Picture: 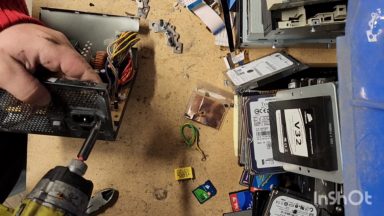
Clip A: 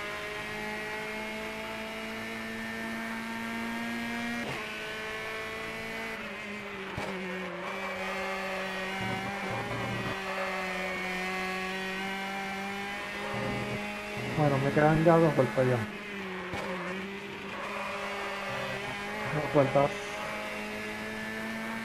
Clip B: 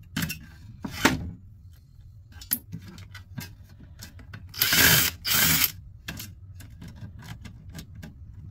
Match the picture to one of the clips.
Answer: B